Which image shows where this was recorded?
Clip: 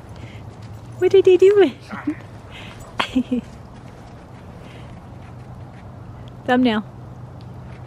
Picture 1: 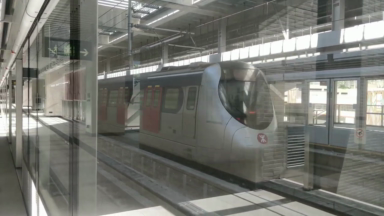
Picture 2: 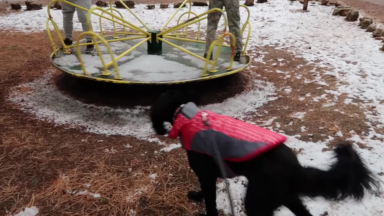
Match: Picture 2